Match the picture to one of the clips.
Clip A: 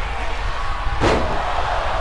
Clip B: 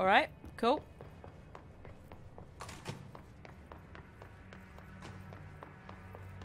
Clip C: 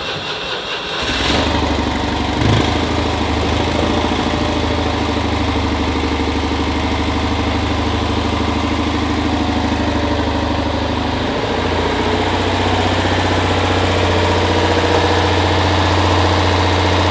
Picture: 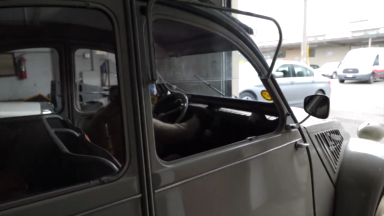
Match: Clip C